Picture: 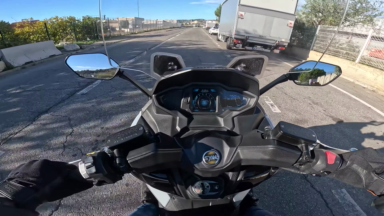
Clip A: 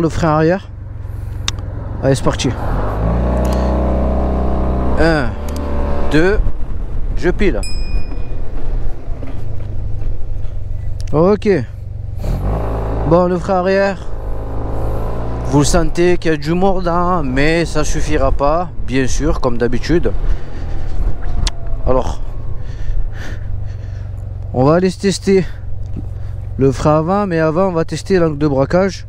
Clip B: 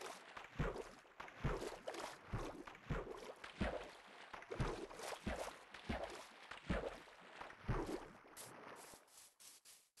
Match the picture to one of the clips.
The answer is A